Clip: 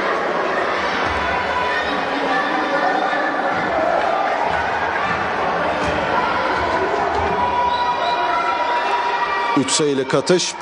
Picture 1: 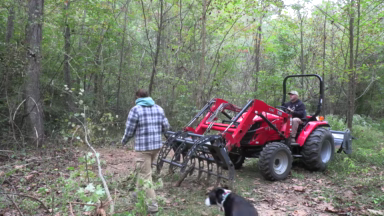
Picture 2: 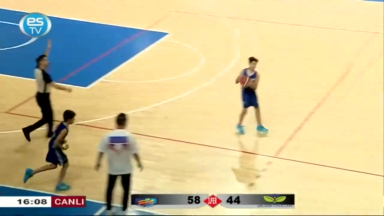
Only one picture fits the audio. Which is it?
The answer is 2